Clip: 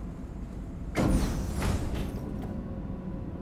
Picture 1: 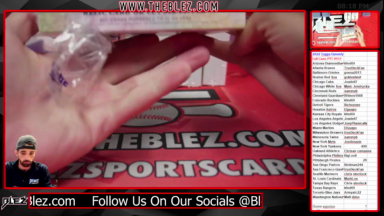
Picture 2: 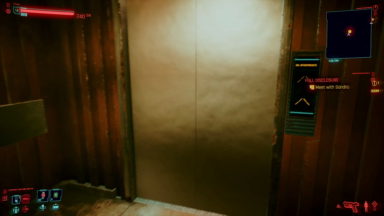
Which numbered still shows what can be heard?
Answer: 2